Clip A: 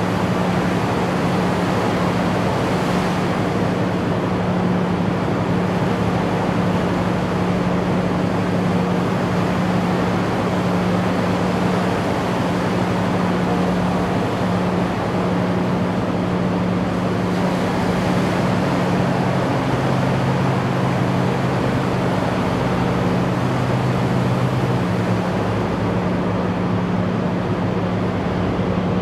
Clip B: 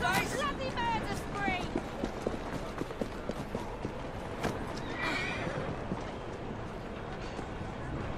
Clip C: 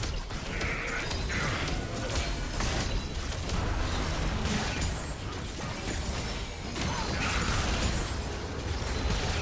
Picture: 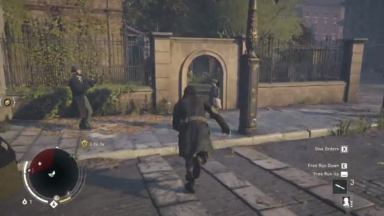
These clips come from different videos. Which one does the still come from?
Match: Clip B